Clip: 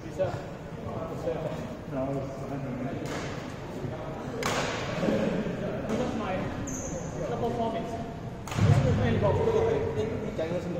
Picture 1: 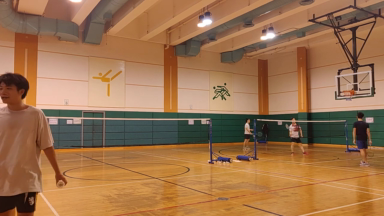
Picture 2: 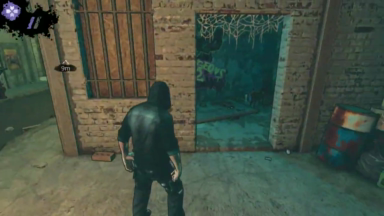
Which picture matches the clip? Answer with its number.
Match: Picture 1